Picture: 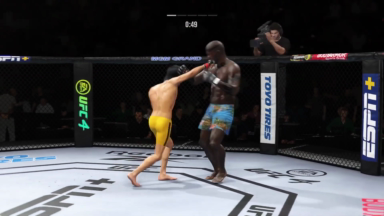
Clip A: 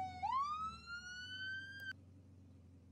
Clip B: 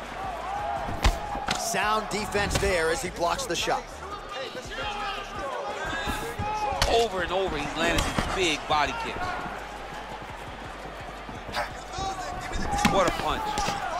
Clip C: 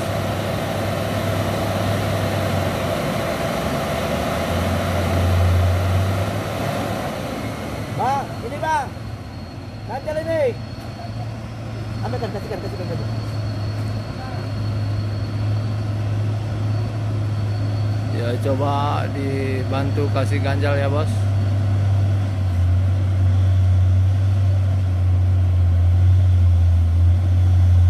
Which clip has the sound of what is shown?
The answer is B